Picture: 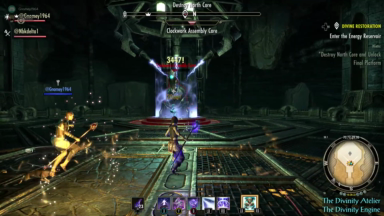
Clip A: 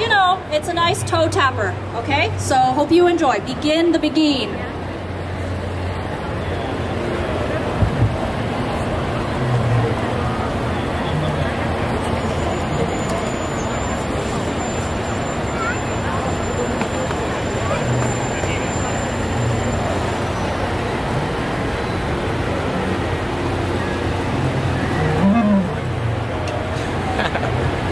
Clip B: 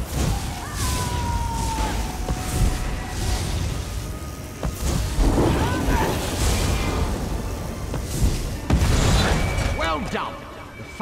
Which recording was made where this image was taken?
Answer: B